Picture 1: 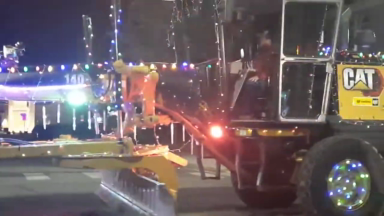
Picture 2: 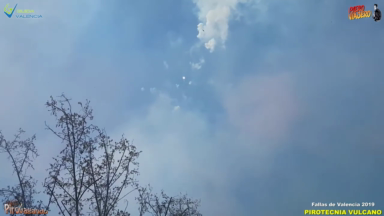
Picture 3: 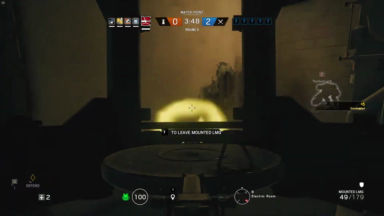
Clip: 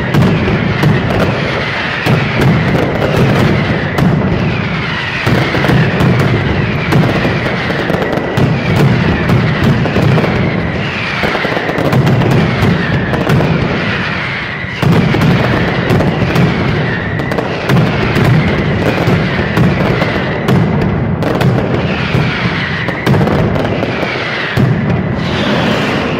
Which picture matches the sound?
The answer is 2